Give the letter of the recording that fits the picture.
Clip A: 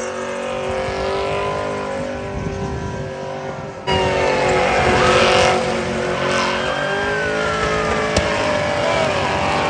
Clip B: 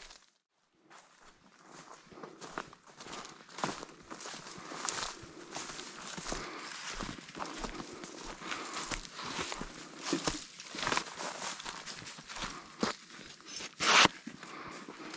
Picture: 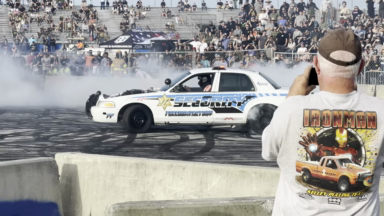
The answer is A